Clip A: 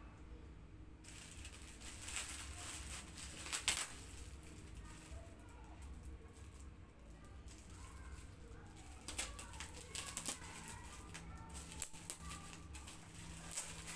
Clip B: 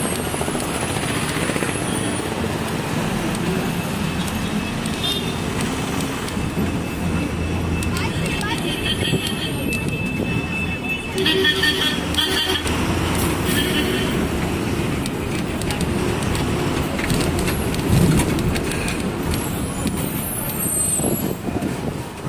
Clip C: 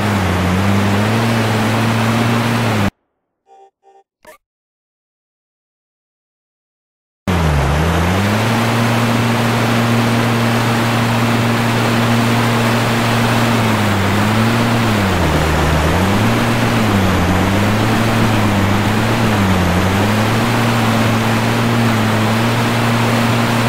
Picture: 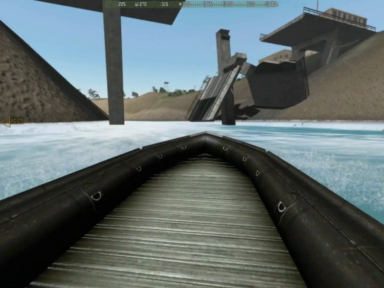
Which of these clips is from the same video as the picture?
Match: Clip C